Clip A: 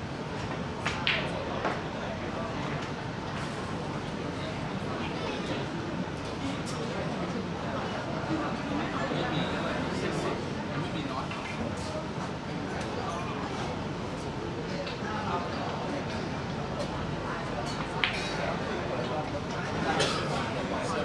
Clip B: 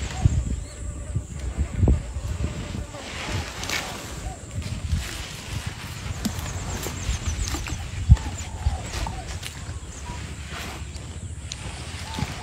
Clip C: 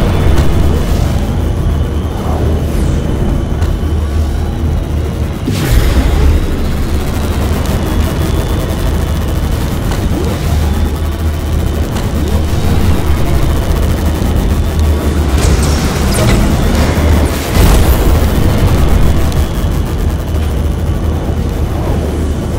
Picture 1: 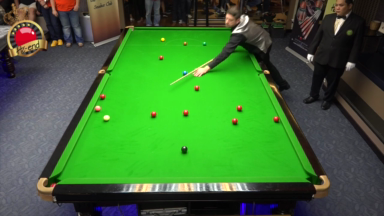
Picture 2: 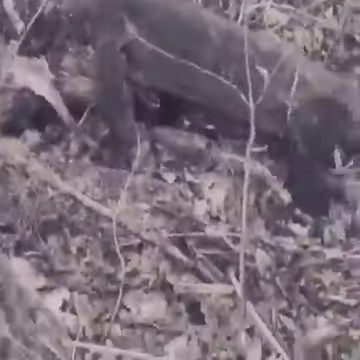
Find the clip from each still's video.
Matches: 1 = A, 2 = B